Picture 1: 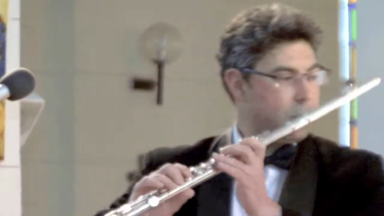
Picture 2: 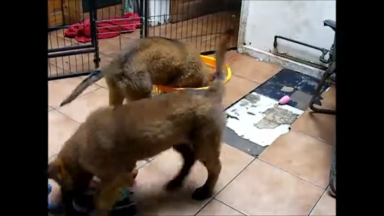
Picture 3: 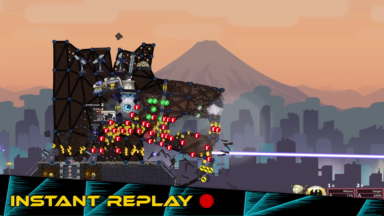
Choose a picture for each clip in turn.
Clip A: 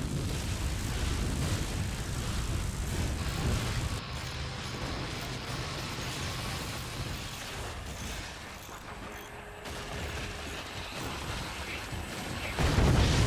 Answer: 3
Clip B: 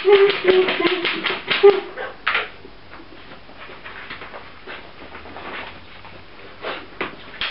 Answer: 2